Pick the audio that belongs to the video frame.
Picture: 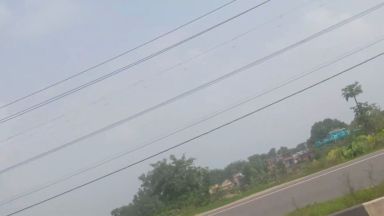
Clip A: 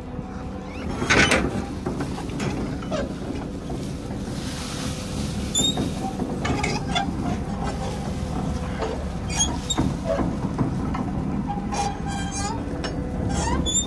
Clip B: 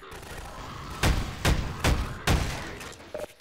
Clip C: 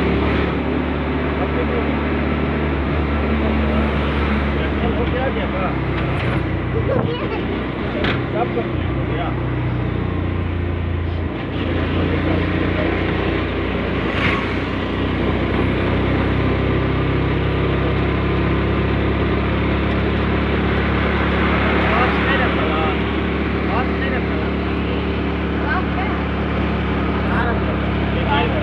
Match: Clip C